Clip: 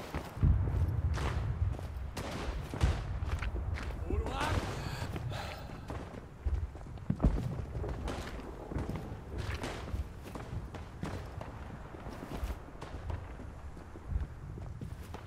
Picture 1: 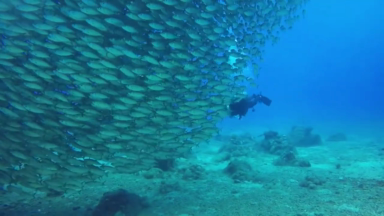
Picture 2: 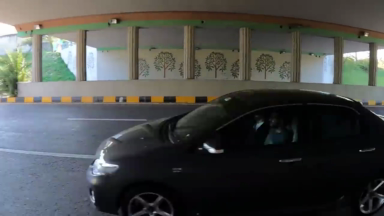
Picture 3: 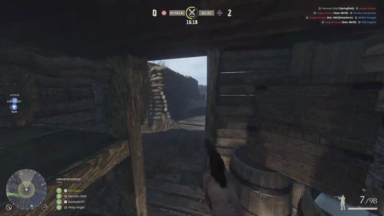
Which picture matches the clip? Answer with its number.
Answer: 3